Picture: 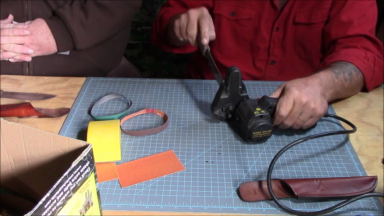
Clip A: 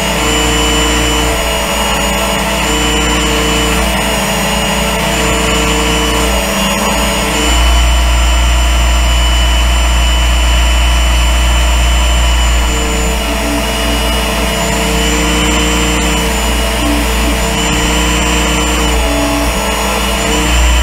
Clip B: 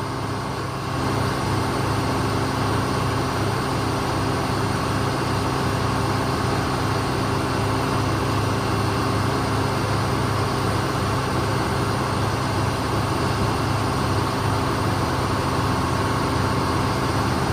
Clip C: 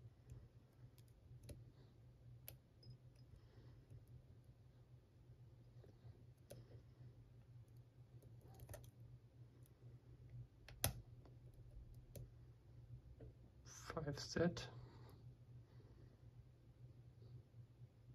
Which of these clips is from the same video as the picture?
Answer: A